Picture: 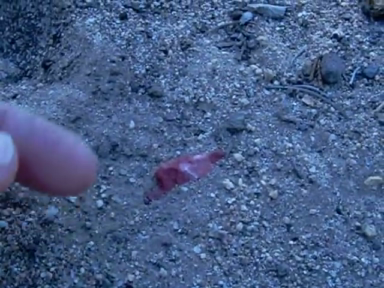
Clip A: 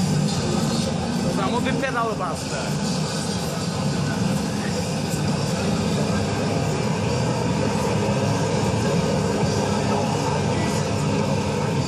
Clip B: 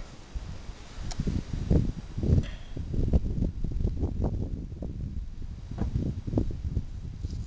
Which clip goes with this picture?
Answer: B